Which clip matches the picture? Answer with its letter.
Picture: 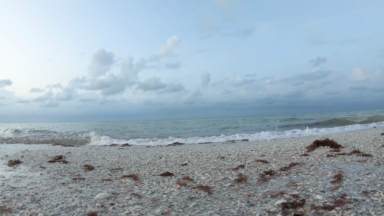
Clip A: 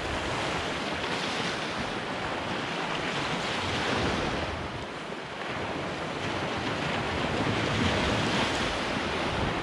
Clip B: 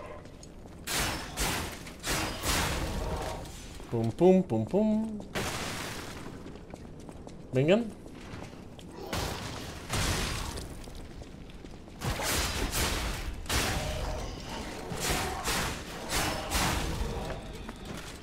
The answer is A